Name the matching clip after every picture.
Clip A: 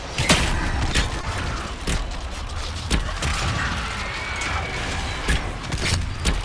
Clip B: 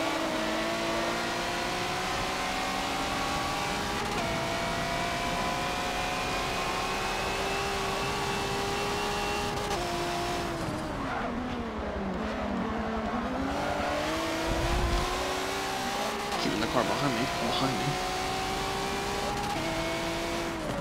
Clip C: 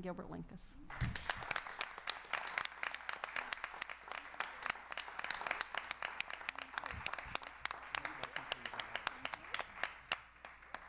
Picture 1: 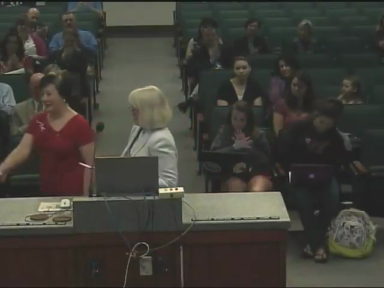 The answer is C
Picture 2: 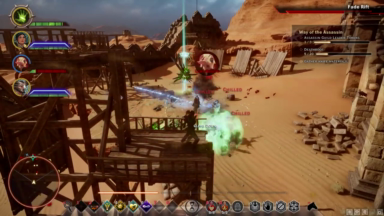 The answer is A